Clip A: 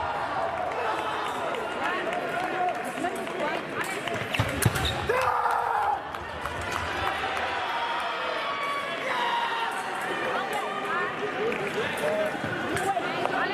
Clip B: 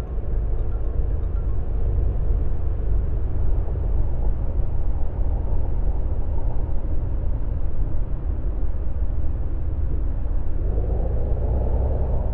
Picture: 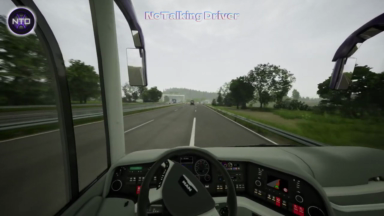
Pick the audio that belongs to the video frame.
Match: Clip B